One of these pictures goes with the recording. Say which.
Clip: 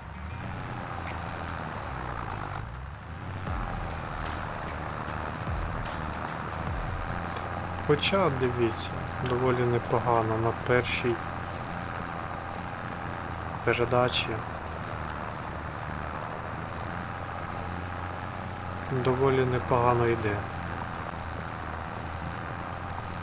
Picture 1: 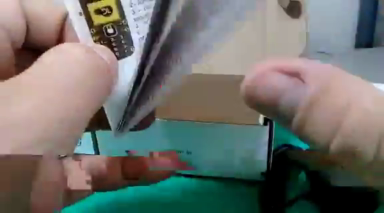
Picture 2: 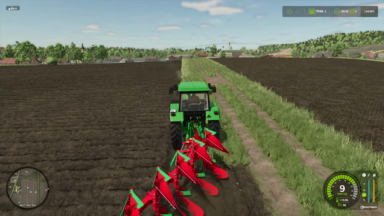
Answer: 2